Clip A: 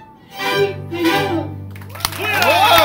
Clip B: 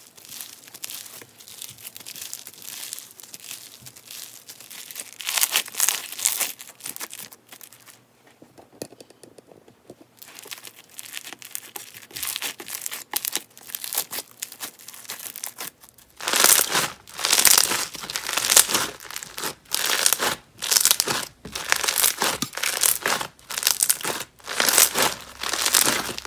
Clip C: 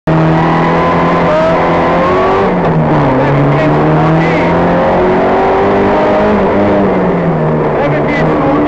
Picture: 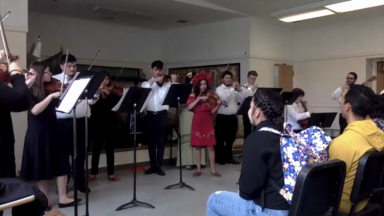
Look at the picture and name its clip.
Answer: A